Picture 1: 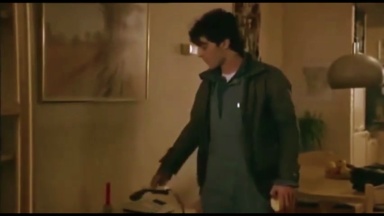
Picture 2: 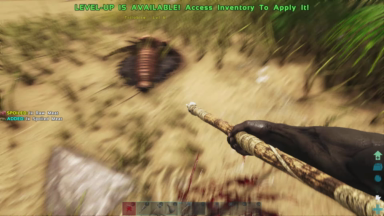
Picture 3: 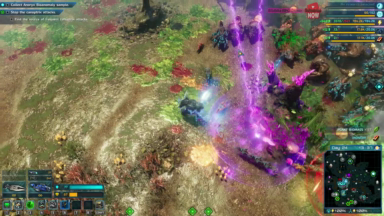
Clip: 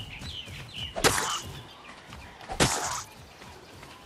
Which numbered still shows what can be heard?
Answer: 2